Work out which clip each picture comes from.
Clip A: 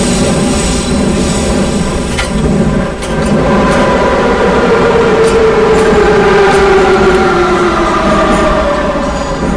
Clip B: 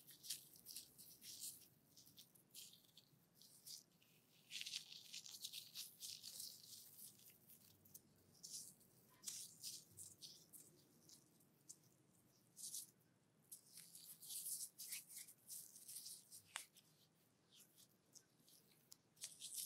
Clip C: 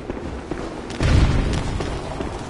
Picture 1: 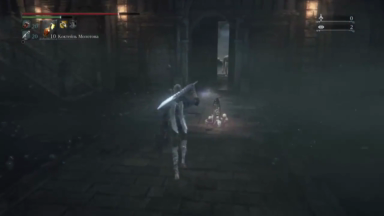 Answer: C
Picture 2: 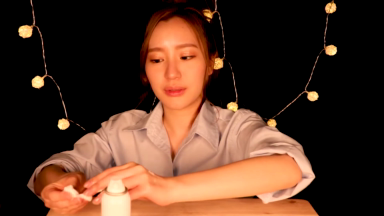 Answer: B